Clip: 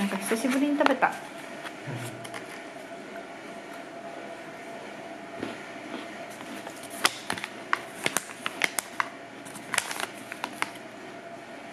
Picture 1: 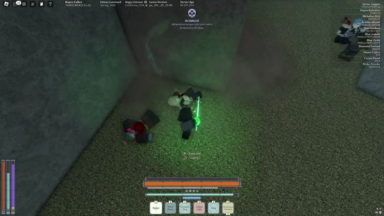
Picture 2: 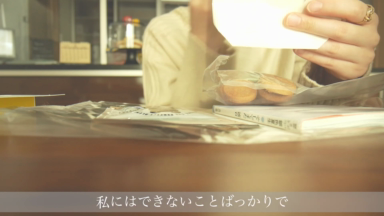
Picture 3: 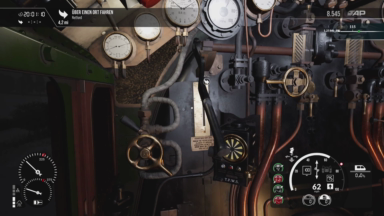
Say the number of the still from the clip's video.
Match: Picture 2